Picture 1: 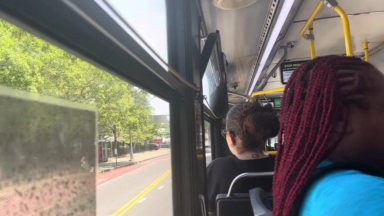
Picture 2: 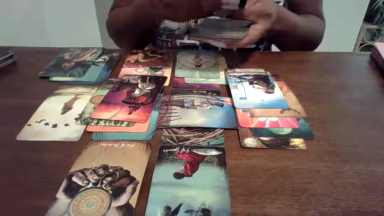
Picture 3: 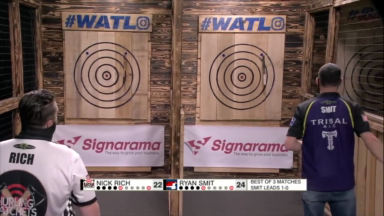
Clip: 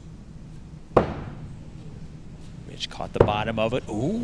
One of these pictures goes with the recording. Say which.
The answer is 3